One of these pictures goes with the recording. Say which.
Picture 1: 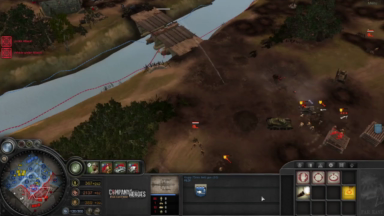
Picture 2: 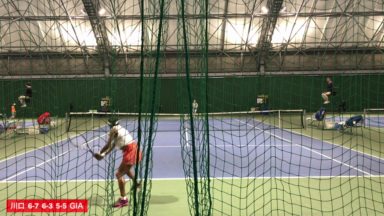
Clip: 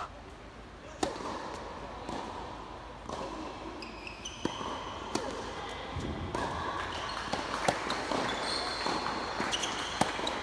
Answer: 2